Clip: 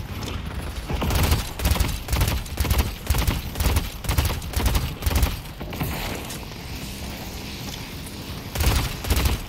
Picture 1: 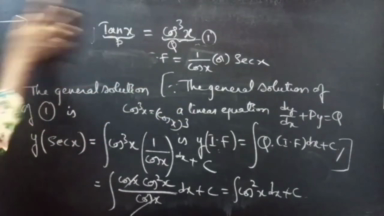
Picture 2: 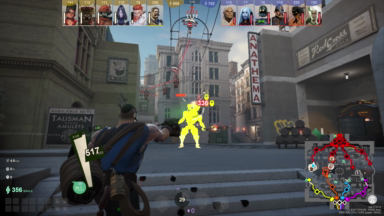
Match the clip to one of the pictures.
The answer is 2